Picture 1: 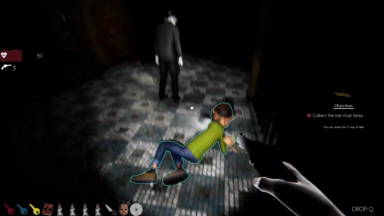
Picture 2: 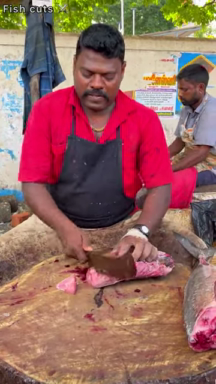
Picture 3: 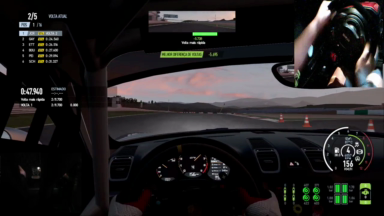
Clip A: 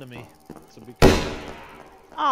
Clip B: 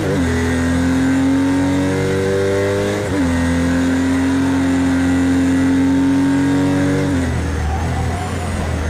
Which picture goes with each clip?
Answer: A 1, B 3